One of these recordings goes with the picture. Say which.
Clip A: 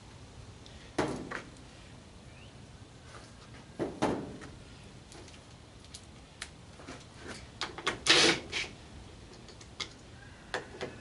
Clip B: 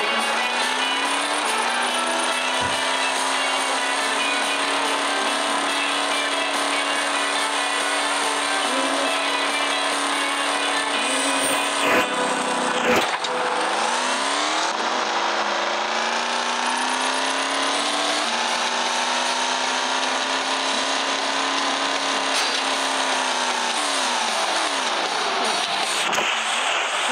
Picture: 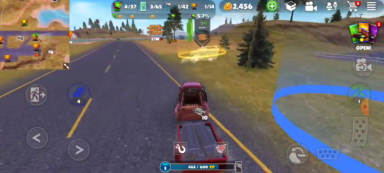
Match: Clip B